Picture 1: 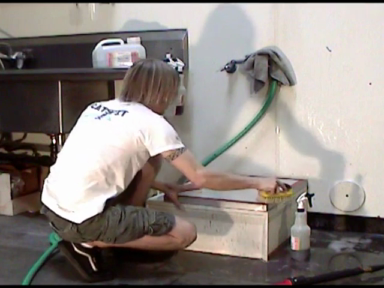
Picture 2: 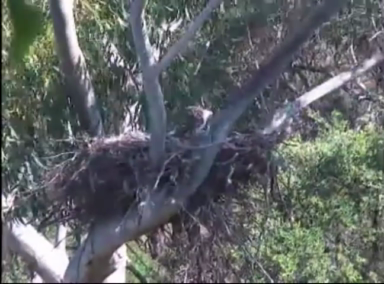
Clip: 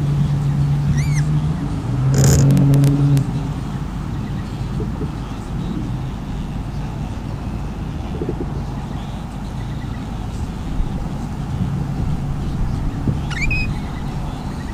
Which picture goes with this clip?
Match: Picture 2